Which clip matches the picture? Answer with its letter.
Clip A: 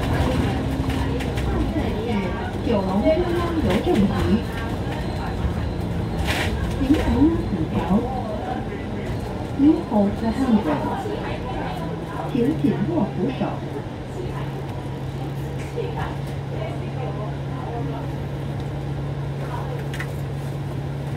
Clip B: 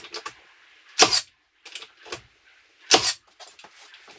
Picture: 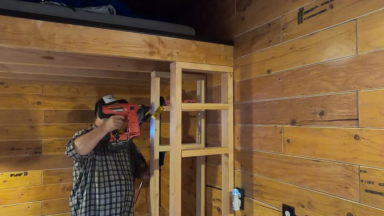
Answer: B